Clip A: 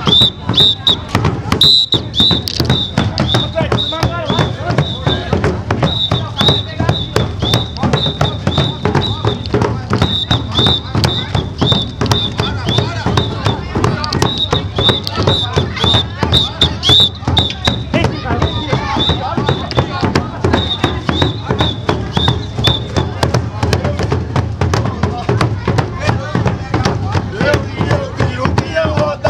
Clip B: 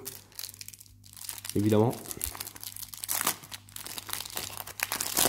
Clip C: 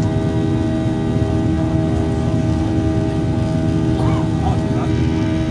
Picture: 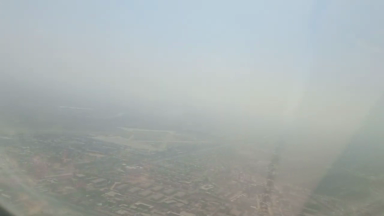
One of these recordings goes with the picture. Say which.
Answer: C